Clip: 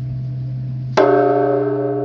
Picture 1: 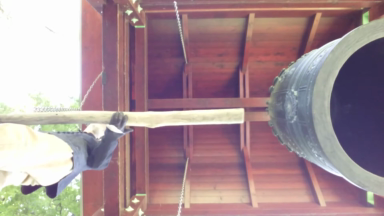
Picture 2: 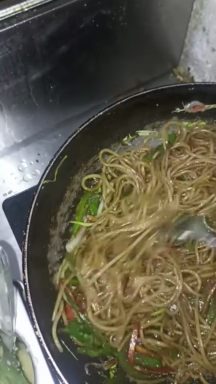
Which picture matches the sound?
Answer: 1